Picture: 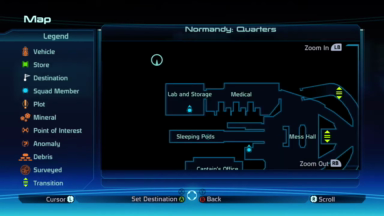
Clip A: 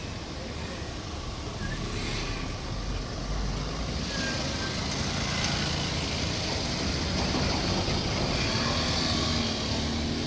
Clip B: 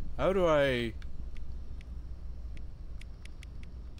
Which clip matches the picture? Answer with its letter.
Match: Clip B